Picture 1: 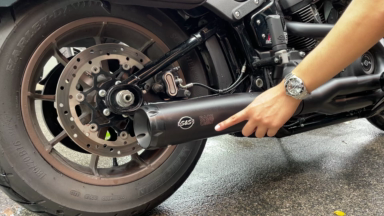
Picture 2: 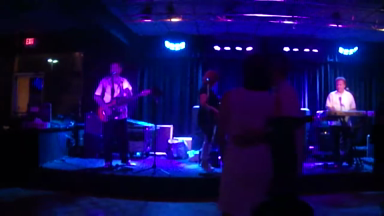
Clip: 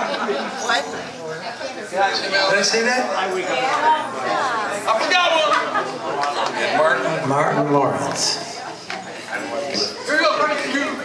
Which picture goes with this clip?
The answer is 2